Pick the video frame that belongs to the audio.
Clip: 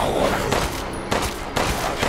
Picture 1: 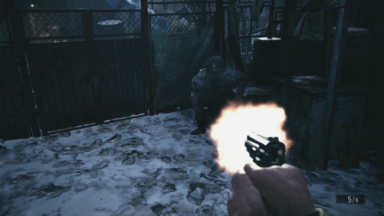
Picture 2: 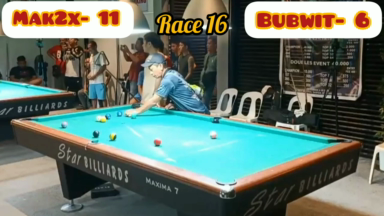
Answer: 1